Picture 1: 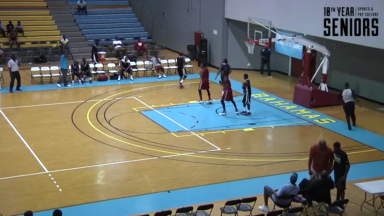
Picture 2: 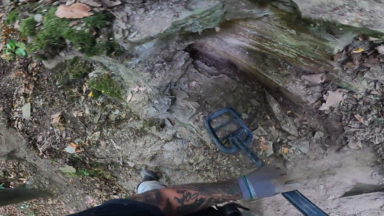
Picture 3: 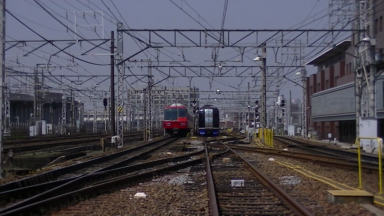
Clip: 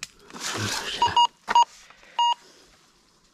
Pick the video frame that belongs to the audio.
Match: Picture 2